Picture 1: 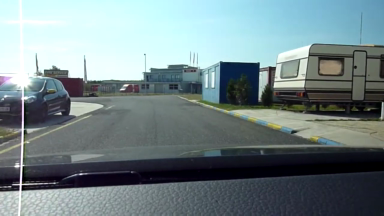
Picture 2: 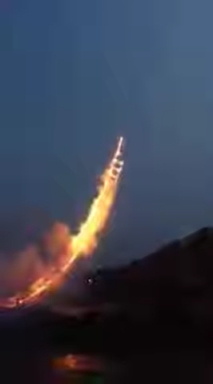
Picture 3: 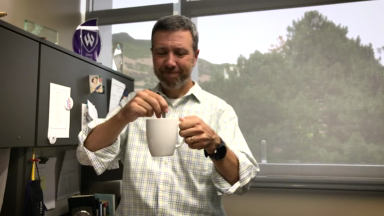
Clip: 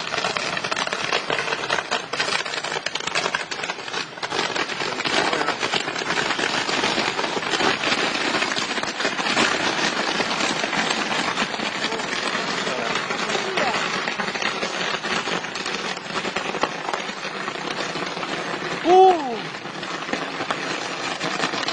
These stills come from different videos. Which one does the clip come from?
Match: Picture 2